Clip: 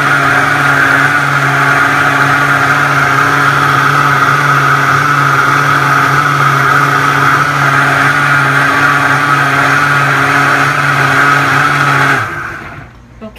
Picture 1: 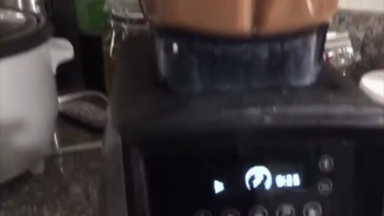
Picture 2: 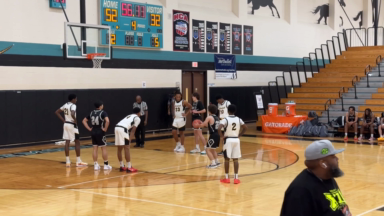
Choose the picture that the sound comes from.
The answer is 1